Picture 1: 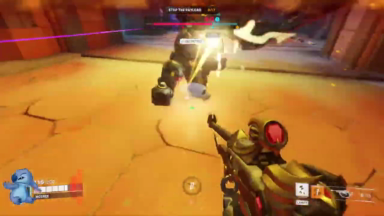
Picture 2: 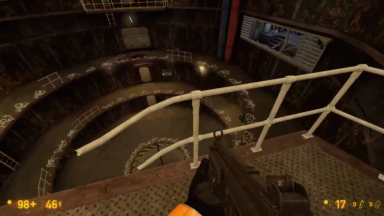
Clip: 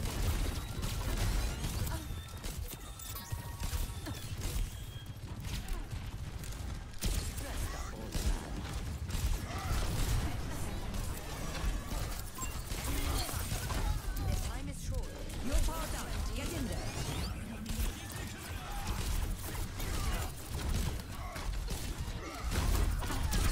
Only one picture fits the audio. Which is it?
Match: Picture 1